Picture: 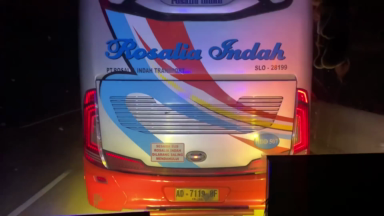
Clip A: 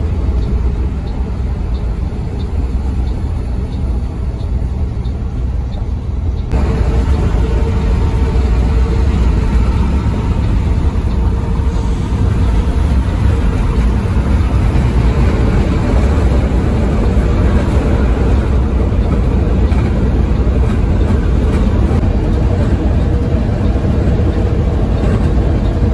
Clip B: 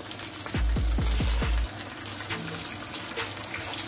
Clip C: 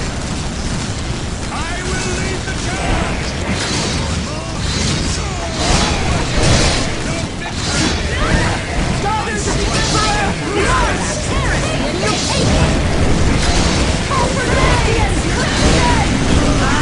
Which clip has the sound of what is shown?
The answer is A